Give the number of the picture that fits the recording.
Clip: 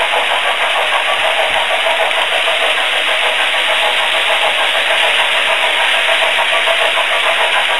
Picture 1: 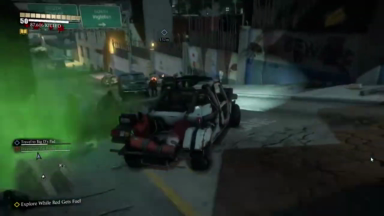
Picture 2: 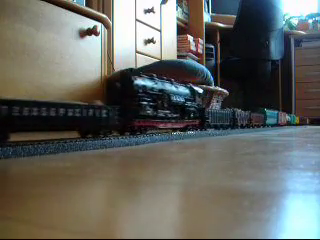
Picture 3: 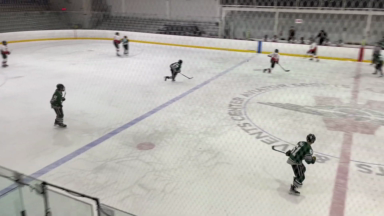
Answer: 2